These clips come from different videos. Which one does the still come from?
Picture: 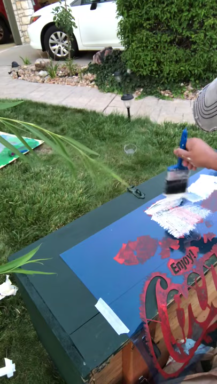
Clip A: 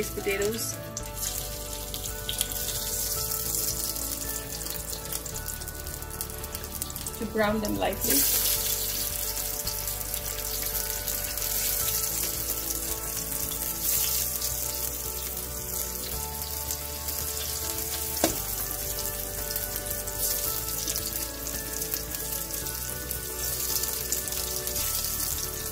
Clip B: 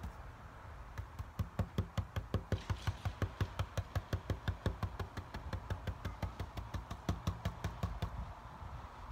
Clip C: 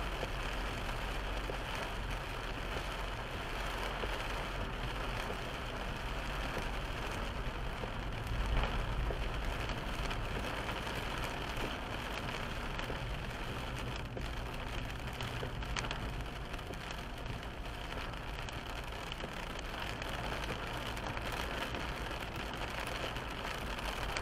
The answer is B